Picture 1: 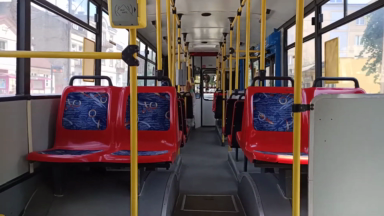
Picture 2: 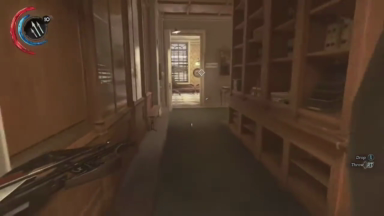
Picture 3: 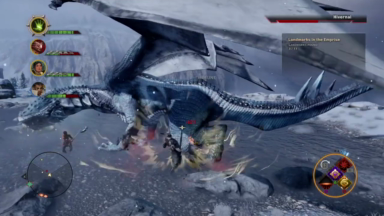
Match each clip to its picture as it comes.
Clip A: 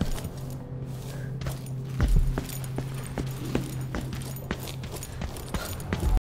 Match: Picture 2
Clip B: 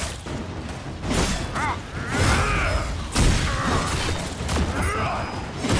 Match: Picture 3